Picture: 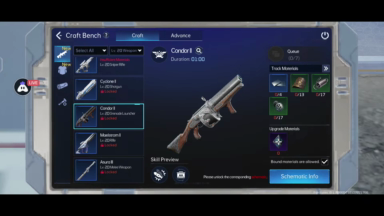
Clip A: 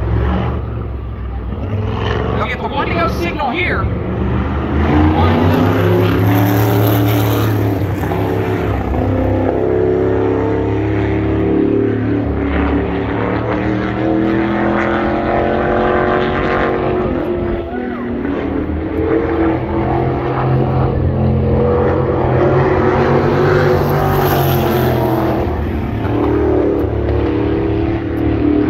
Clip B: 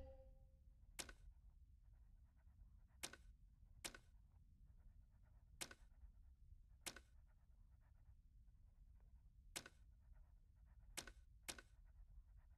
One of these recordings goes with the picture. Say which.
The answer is B